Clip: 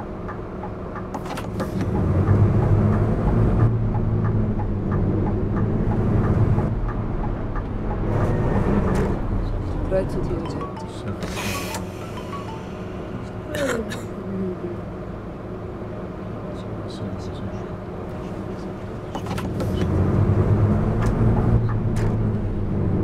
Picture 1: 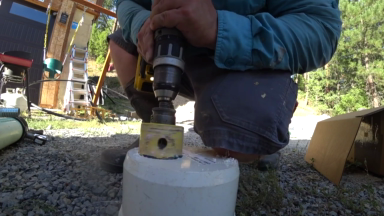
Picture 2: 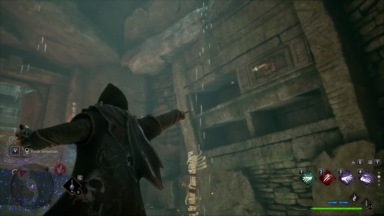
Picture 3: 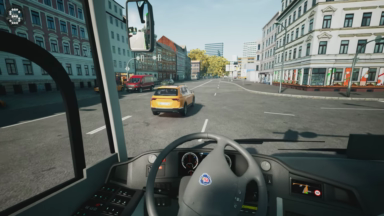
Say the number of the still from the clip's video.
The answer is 3